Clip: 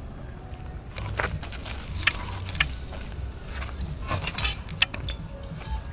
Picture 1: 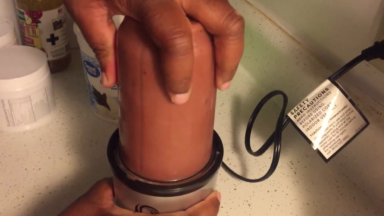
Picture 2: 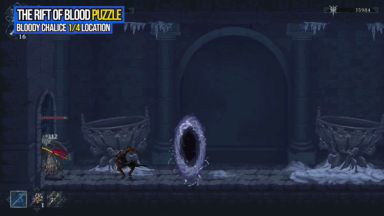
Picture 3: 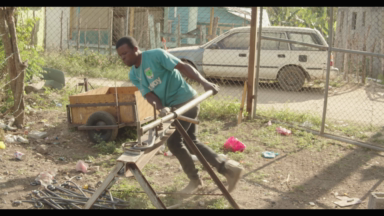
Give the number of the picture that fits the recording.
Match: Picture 3